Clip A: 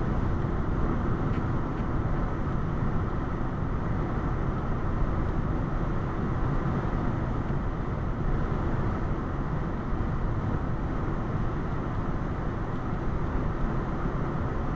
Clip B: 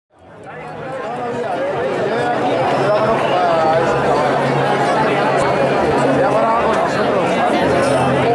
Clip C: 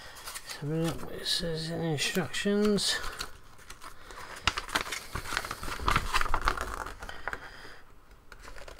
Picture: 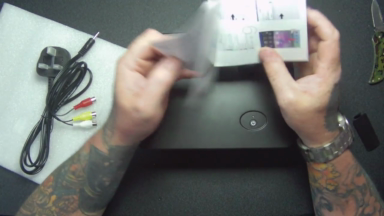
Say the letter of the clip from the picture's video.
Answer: C